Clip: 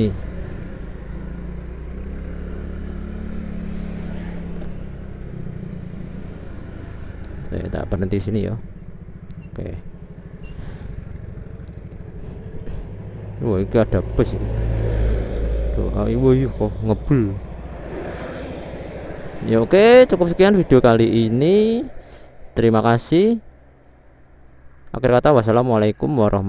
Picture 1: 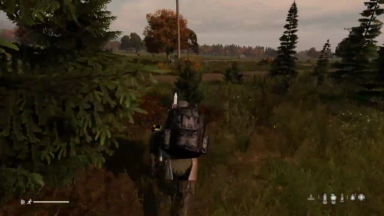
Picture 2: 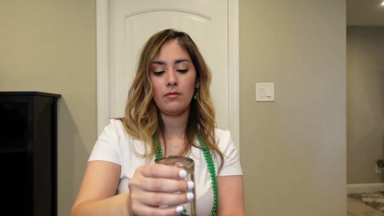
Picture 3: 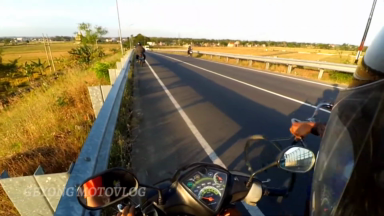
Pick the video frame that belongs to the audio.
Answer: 3